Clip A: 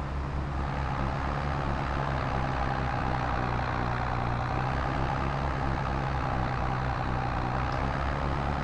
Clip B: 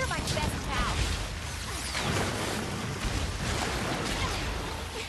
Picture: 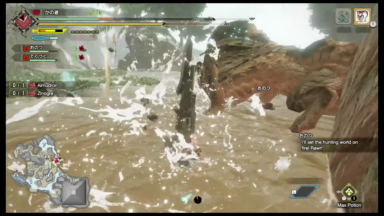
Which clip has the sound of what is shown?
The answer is B